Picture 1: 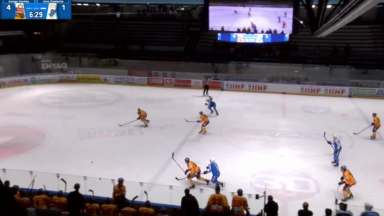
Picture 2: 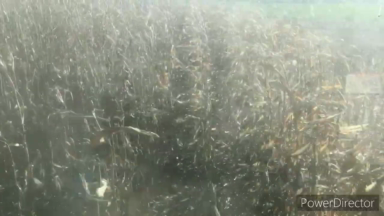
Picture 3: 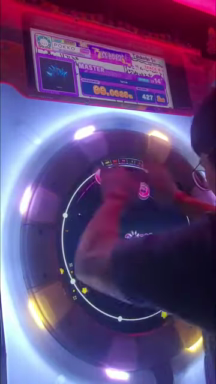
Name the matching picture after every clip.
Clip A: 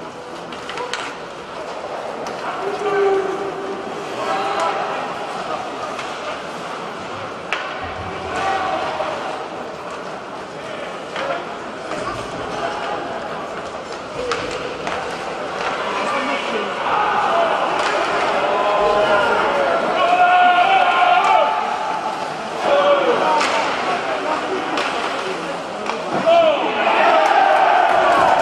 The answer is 1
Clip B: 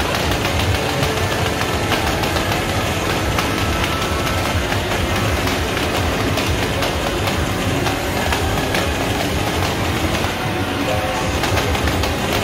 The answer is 3